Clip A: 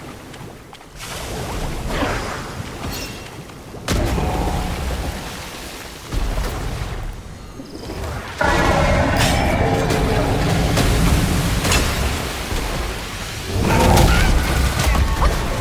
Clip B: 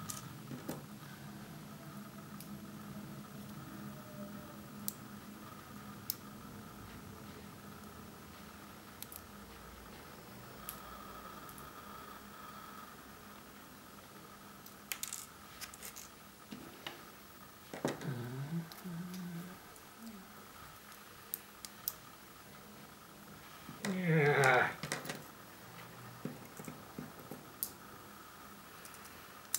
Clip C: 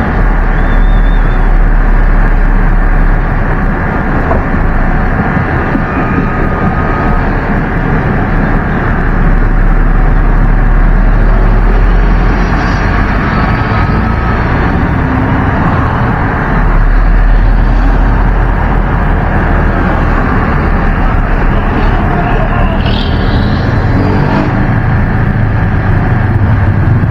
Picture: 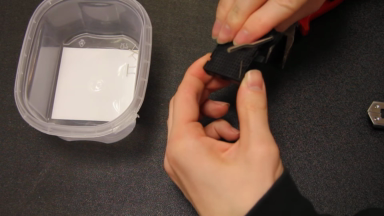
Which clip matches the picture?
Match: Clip B